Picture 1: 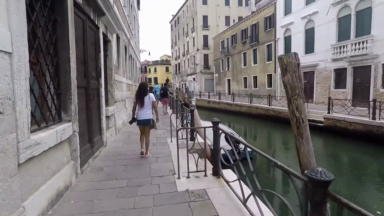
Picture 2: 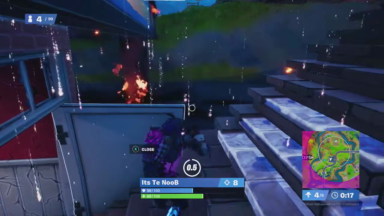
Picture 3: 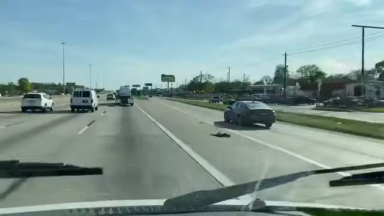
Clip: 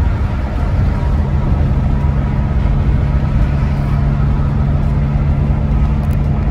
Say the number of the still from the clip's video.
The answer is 3